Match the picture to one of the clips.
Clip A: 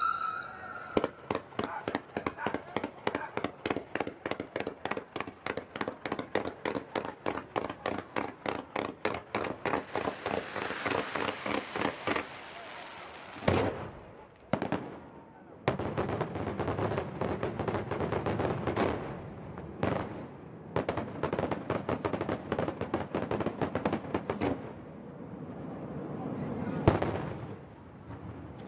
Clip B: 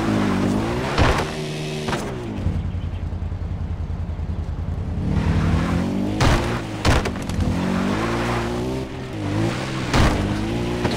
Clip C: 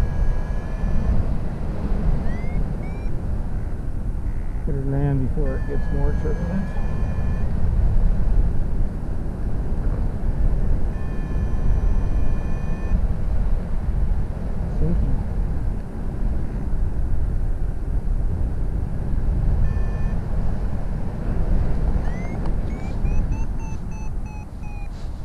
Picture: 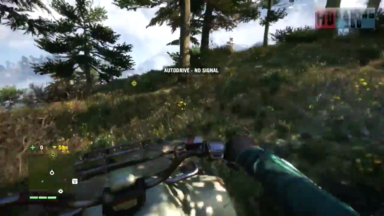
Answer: B